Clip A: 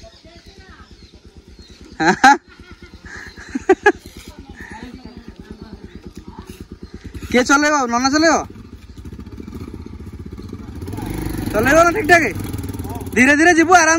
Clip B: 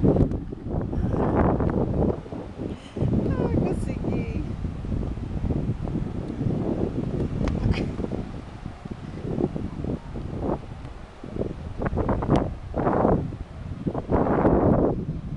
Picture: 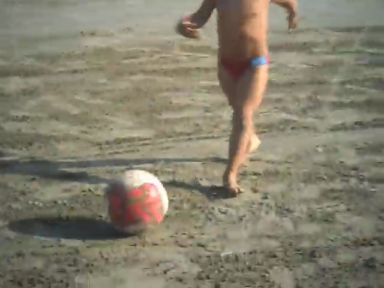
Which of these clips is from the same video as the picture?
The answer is B